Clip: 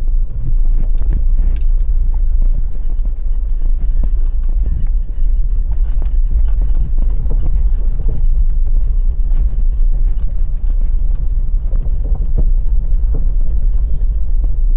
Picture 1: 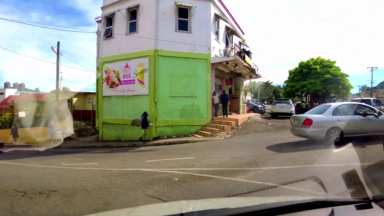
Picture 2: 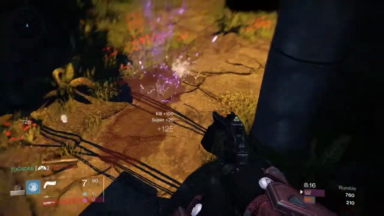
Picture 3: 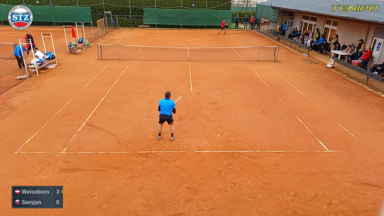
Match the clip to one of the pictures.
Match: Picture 1